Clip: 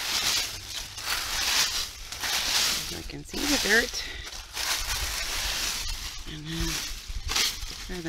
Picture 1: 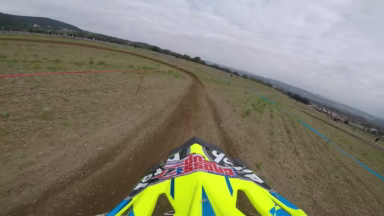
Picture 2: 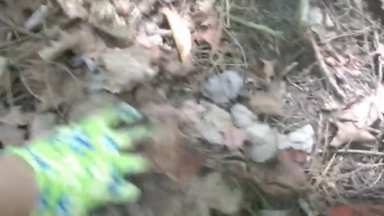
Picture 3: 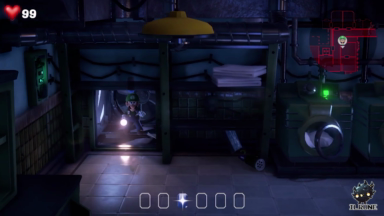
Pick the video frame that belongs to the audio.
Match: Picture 2